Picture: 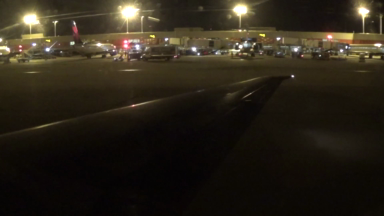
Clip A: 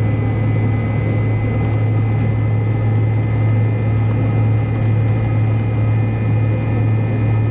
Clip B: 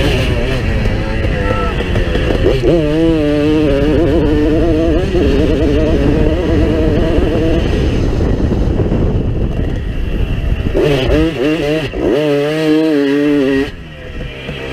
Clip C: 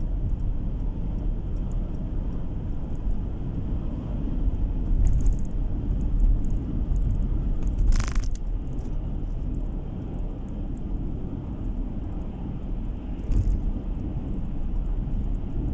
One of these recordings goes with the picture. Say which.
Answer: A